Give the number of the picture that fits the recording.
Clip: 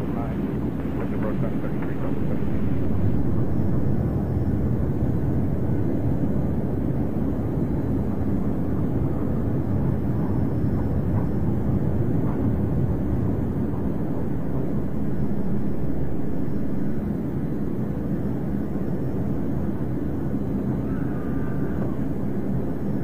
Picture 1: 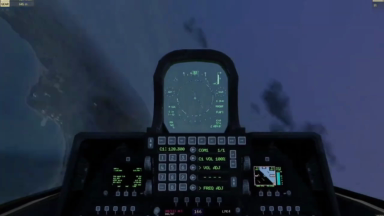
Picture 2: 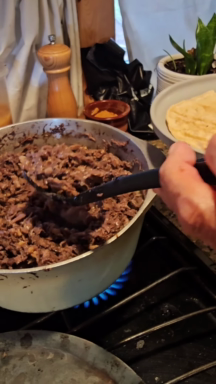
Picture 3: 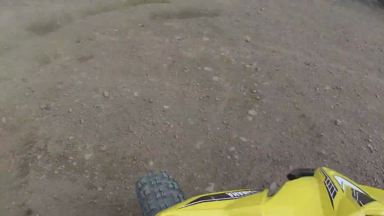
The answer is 1